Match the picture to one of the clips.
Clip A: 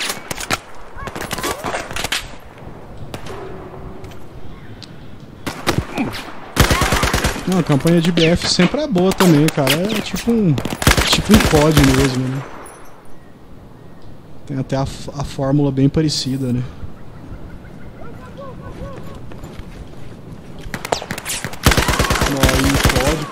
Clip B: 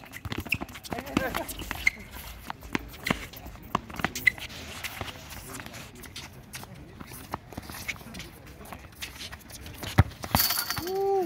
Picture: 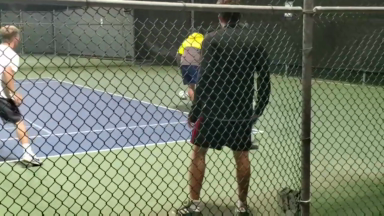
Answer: B